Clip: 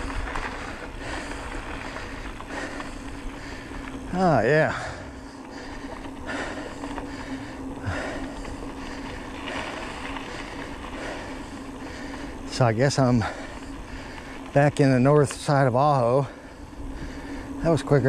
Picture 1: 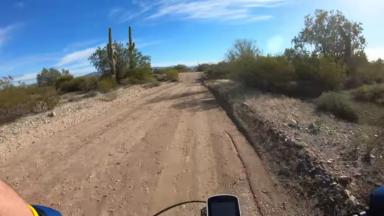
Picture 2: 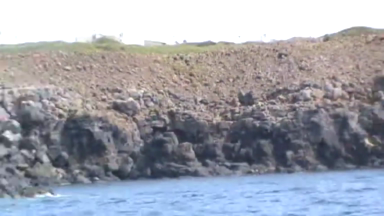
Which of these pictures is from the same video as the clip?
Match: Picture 1